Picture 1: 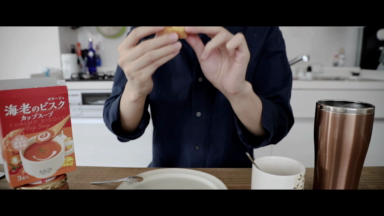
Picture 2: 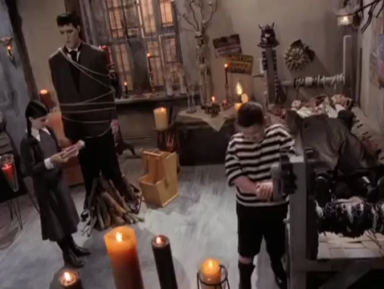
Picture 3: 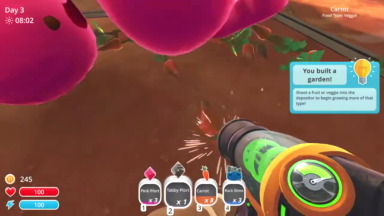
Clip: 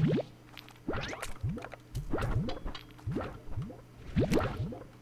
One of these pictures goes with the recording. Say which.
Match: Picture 3